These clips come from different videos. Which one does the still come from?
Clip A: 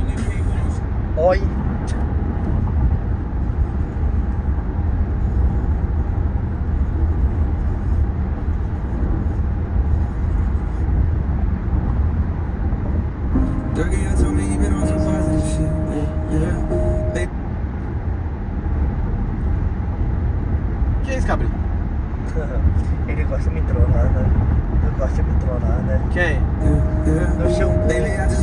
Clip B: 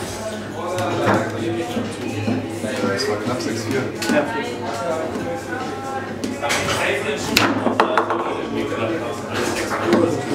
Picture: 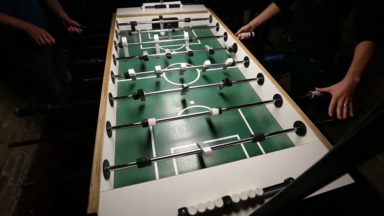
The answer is B